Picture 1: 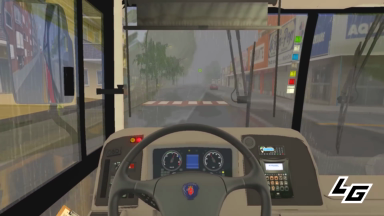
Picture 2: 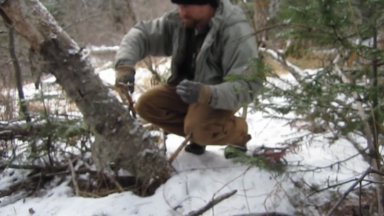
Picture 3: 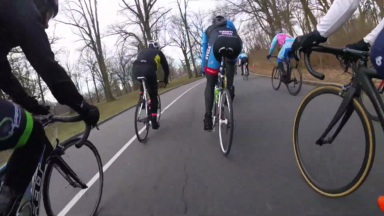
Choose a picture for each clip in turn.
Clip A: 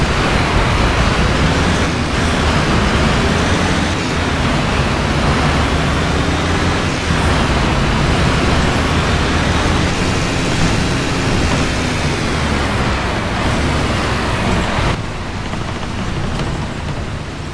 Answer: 1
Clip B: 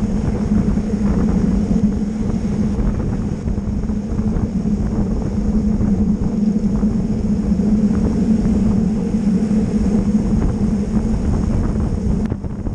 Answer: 3